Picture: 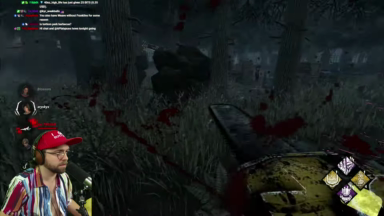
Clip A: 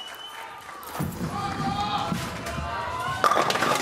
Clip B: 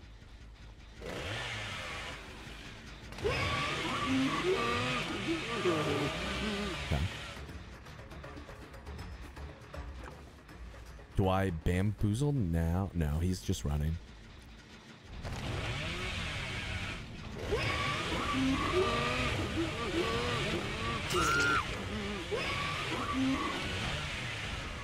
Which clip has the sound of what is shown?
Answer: B